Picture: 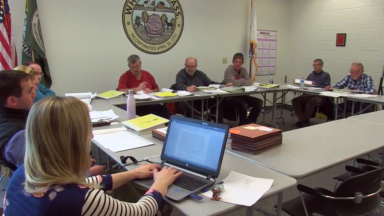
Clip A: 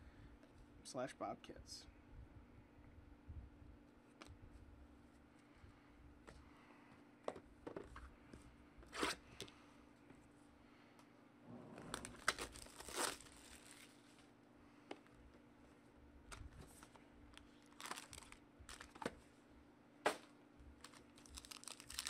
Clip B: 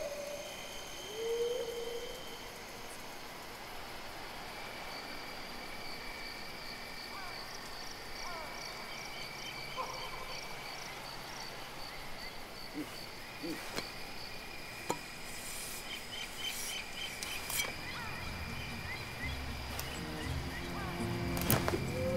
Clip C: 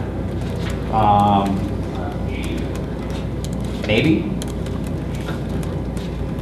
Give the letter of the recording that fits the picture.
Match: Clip C